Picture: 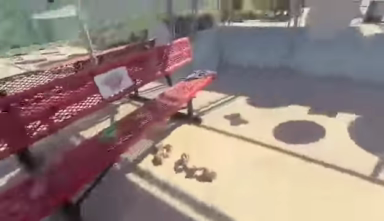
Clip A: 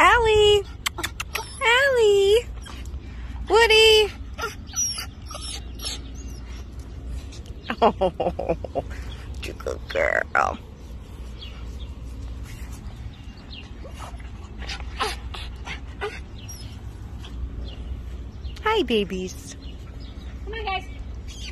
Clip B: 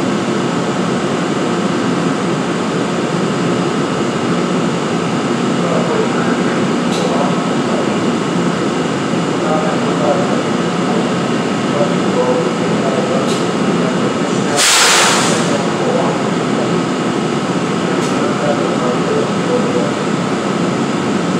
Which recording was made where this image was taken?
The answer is A